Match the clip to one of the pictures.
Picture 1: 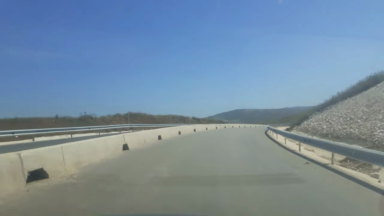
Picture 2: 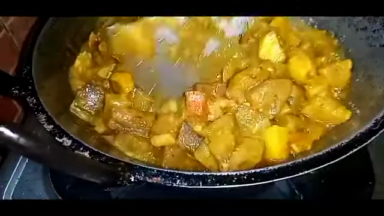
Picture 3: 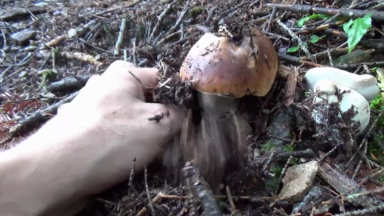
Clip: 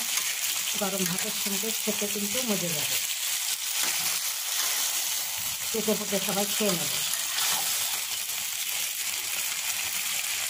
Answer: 2